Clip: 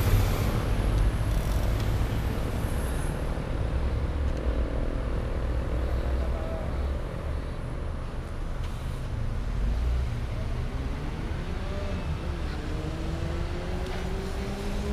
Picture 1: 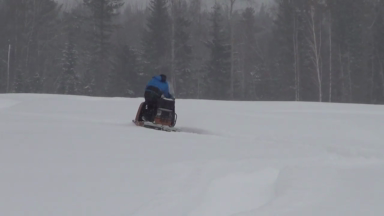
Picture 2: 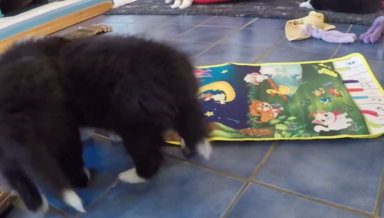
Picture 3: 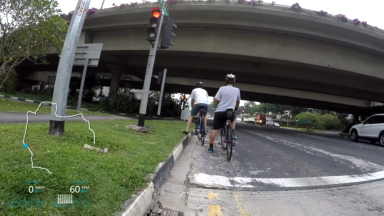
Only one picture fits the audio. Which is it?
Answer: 3